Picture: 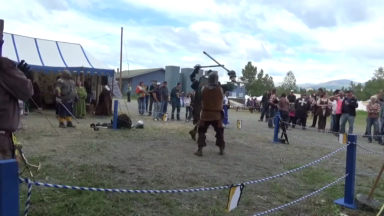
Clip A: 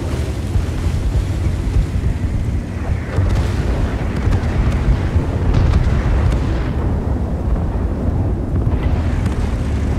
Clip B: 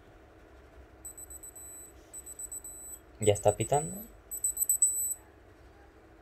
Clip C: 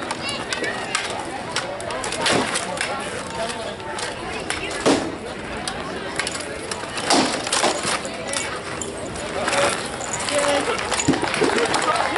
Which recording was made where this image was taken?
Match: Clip C